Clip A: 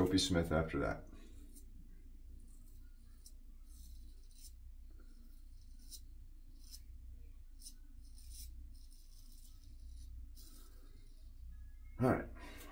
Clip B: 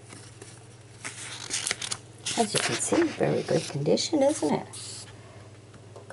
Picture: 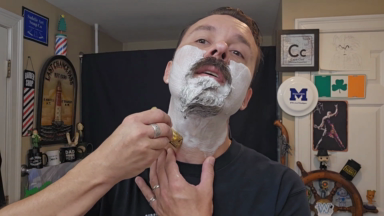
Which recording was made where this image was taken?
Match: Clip A